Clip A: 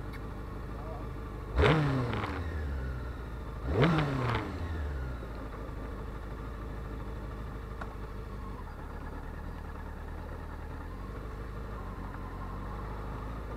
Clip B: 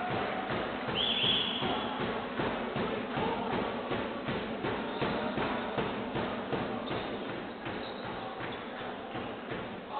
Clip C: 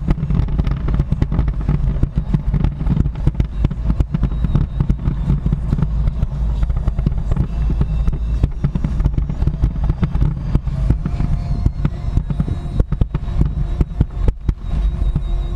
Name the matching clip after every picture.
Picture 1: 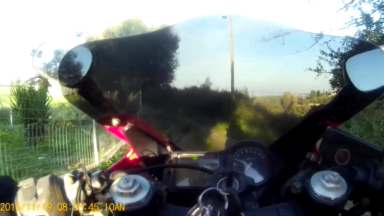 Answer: A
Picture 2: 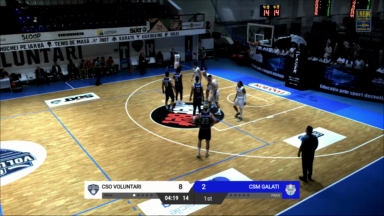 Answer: B